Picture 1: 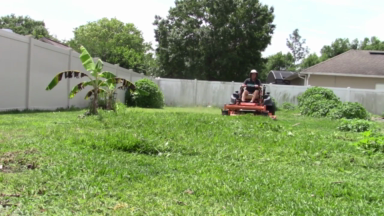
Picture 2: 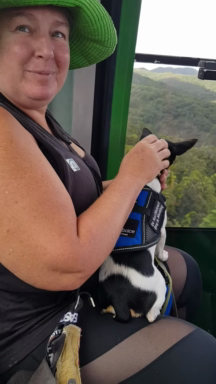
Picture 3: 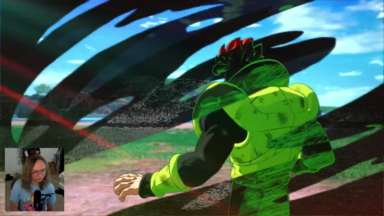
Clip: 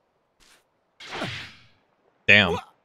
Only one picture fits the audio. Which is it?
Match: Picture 3